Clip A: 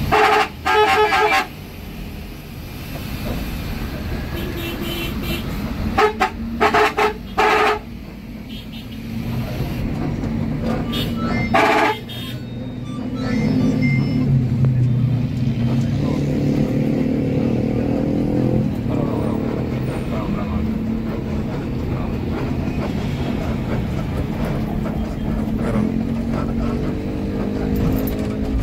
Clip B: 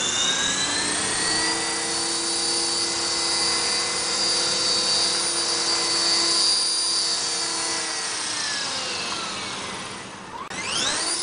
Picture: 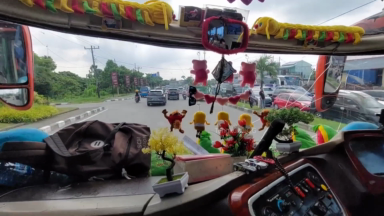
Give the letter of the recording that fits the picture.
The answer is A